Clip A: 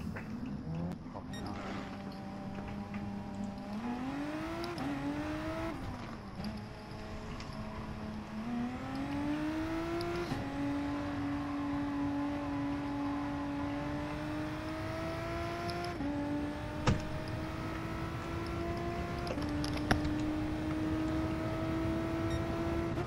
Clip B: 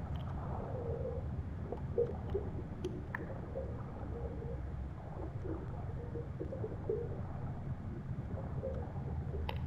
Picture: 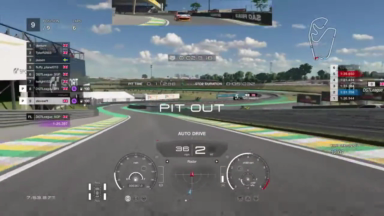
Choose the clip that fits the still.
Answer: A